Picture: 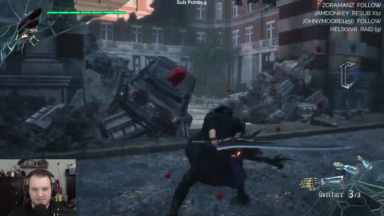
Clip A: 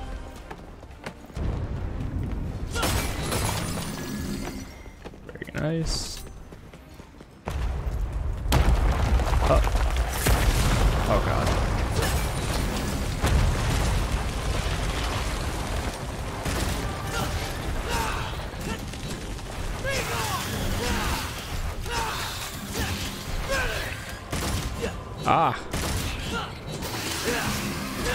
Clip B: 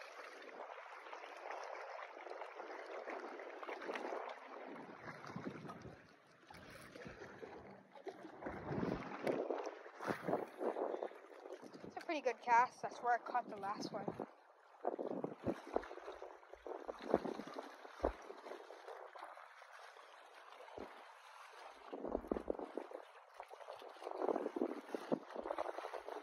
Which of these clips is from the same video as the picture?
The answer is A